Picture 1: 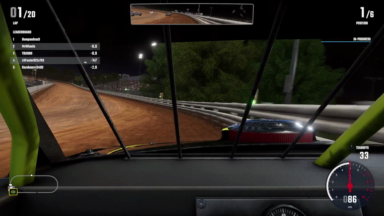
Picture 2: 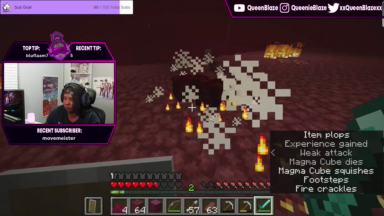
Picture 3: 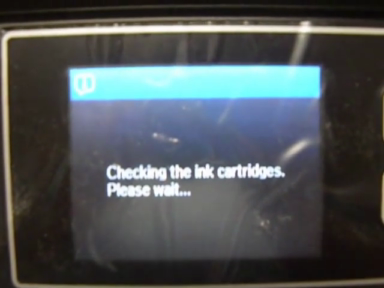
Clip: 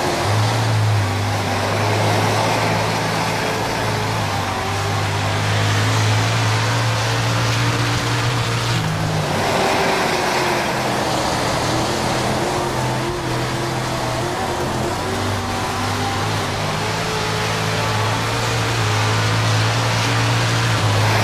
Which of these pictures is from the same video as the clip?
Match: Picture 1